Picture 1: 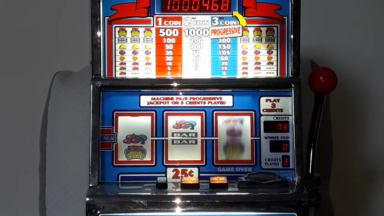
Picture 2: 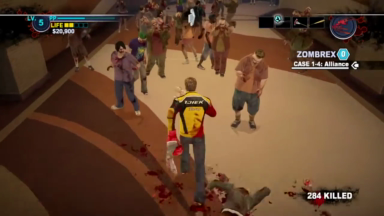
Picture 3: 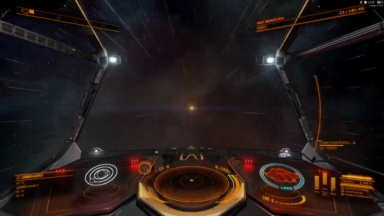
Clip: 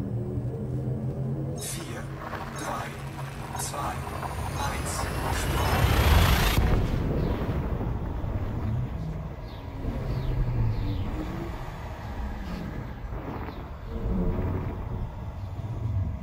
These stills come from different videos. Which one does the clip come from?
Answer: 3